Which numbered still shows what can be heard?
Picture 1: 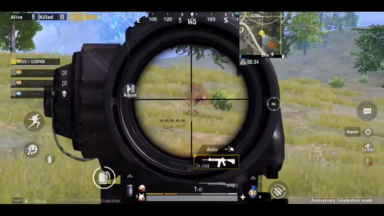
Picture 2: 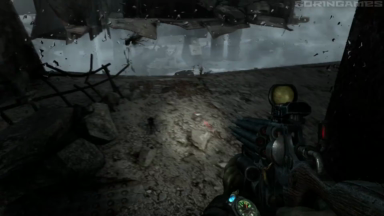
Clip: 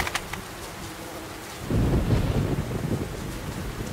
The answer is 2